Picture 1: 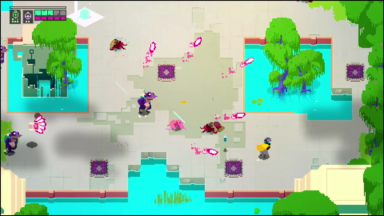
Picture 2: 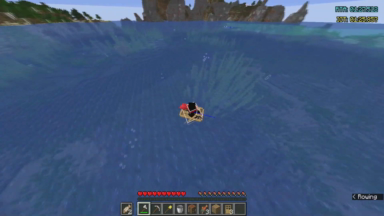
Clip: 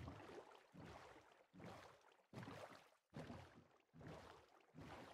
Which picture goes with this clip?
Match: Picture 2